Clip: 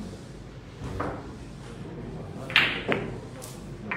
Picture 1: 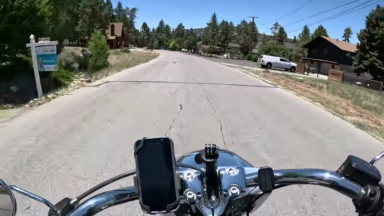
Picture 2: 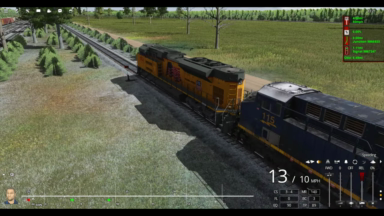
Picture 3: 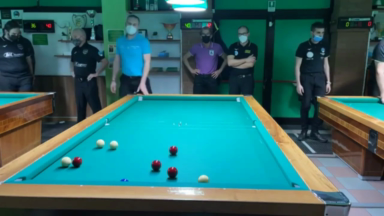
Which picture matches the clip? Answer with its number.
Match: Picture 3